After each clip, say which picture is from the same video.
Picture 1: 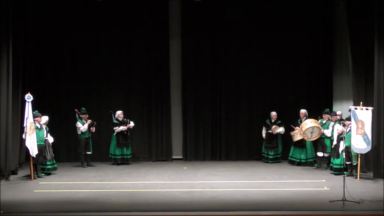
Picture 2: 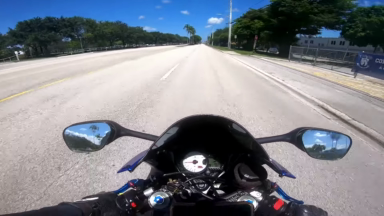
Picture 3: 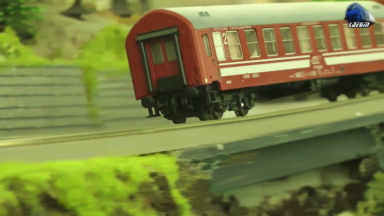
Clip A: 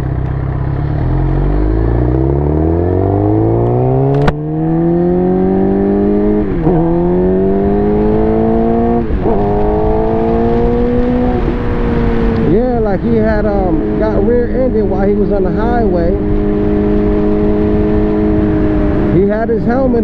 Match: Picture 2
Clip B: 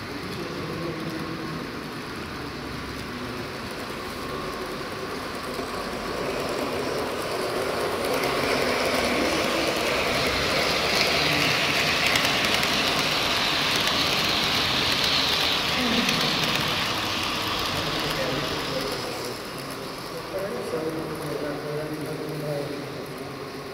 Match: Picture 3